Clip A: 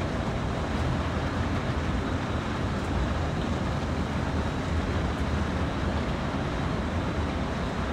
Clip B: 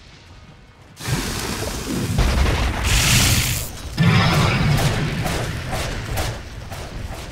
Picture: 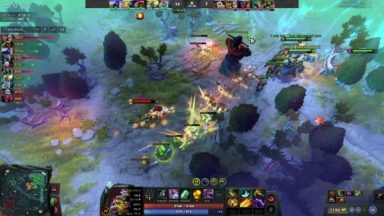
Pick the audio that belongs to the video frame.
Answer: B